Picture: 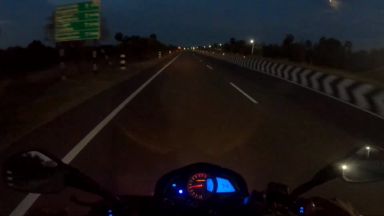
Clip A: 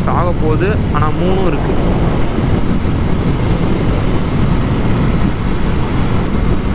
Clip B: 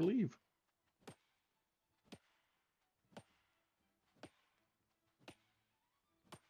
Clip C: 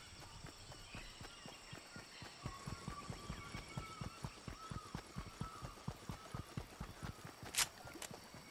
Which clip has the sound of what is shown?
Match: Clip A